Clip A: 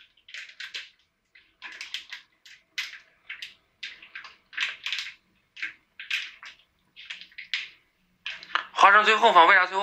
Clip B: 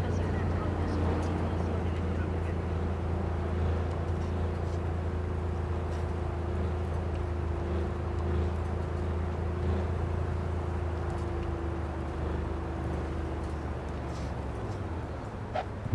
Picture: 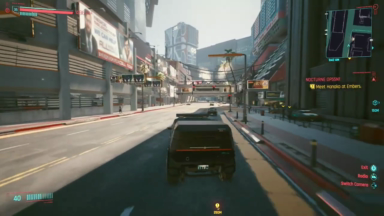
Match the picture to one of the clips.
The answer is B